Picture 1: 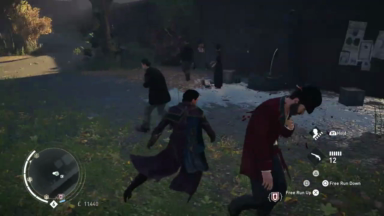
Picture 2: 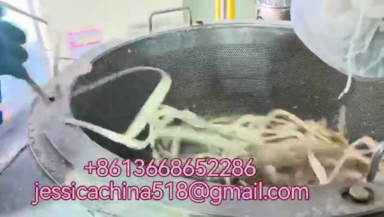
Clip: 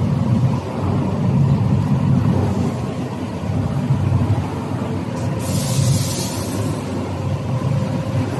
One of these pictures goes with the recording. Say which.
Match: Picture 2